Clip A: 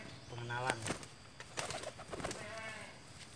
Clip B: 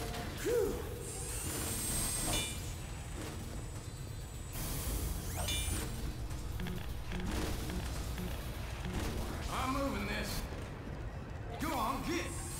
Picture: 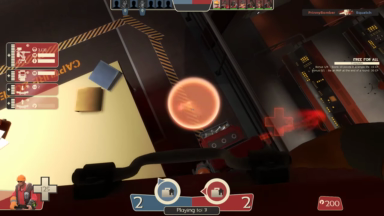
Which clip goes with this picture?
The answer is B